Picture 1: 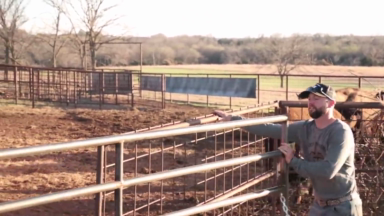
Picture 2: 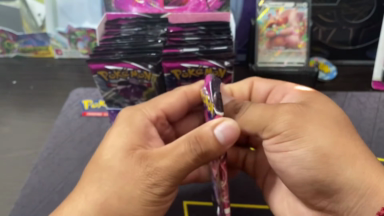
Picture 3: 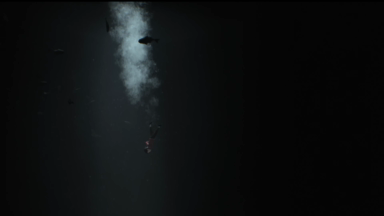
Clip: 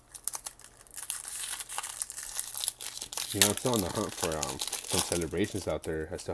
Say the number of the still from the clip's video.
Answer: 2